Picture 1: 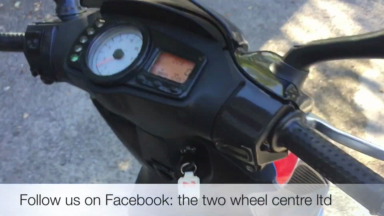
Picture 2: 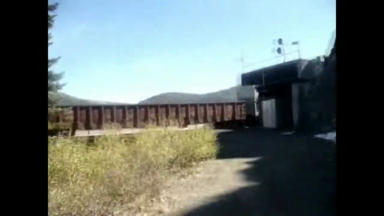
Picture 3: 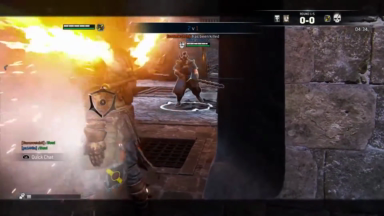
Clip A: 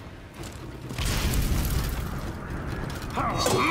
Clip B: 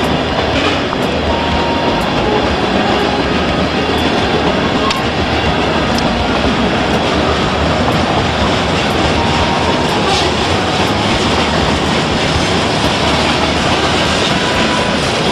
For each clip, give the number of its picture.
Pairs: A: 3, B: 2